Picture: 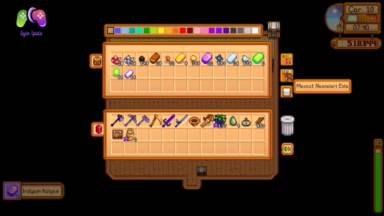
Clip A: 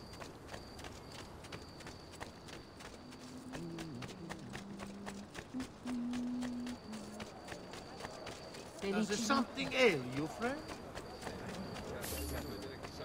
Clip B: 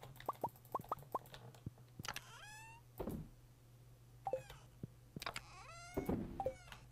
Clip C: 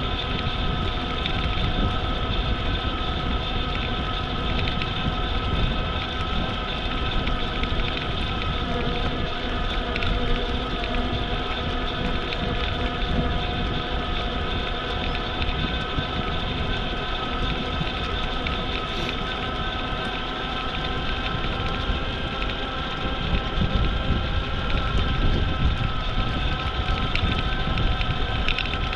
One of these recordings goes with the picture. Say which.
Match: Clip B